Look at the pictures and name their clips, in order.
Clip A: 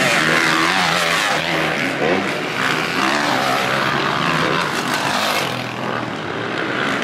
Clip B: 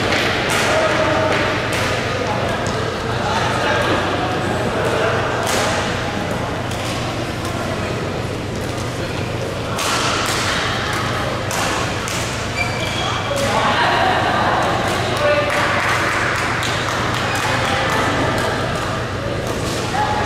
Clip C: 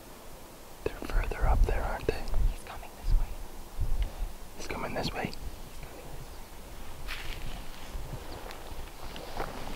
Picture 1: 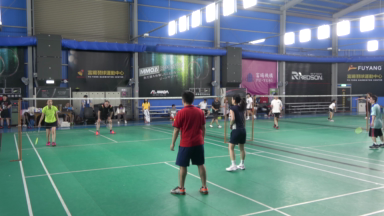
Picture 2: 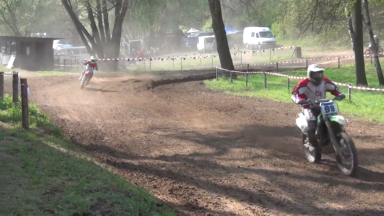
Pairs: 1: B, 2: A